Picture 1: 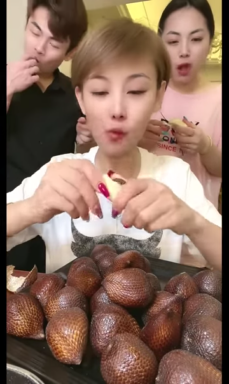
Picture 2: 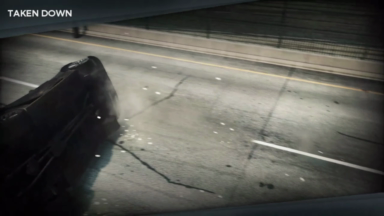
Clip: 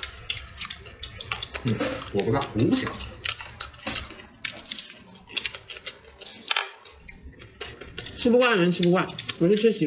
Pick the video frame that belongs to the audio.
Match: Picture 1